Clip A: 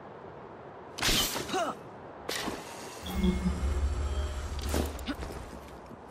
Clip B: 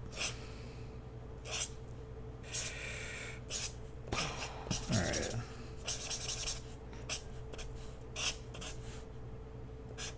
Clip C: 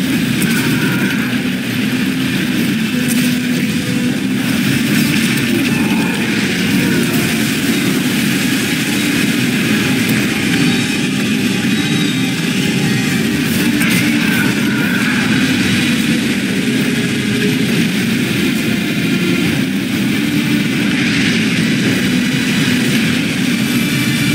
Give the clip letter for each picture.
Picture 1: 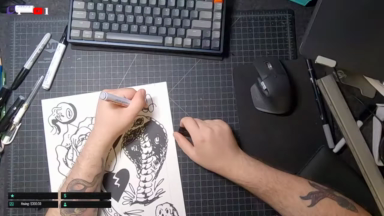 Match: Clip B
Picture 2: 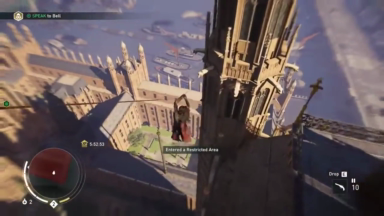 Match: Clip A